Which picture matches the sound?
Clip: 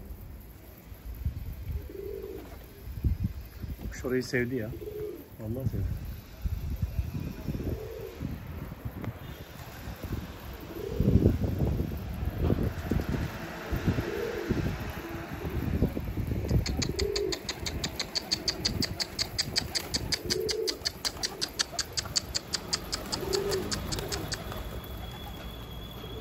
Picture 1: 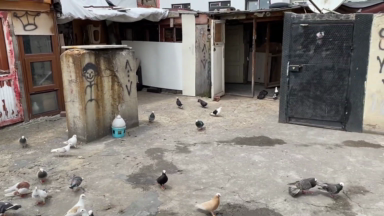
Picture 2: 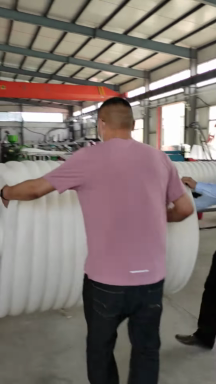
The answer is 1